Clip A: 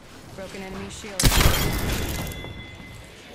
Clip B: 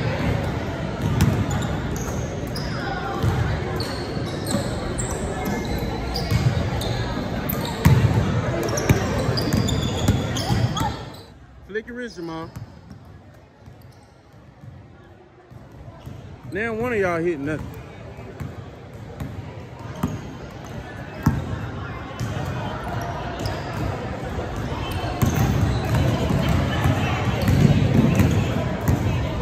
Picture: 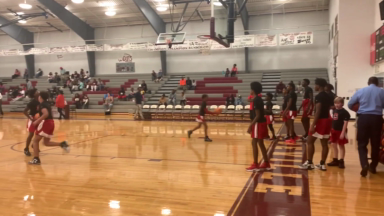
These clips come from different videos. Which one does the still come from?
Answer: B